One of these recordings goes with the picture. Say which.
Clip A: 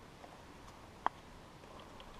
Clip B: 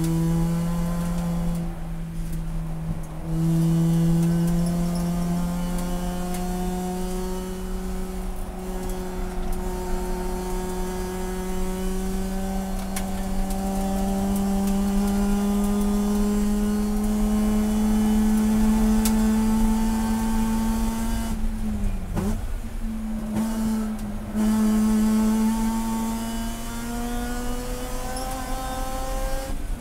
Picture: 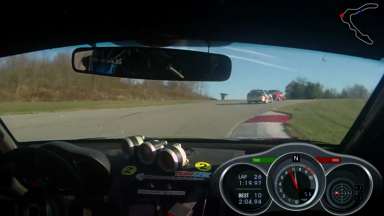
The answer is B